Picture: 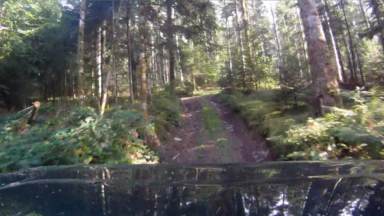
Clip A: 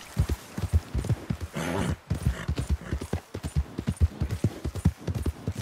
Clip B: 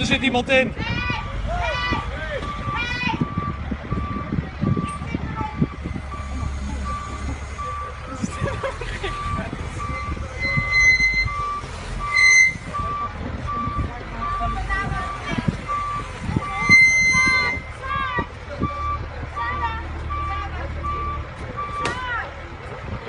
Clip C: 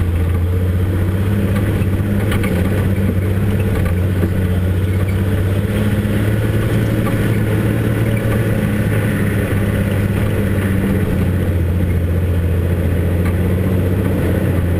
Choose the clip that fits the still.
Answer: C